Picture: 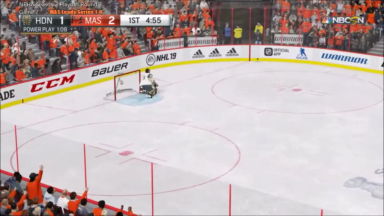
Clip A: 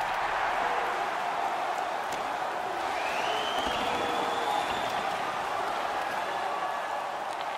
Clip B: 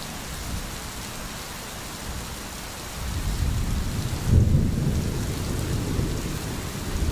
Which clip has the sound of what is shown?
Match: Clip A